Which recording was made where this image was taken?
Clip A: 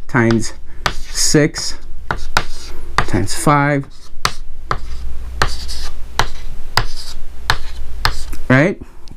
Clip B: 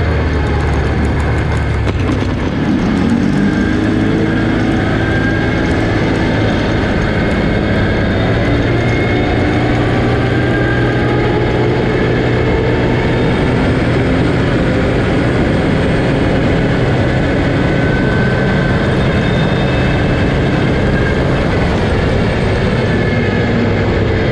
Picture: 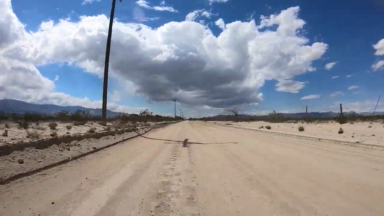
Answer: B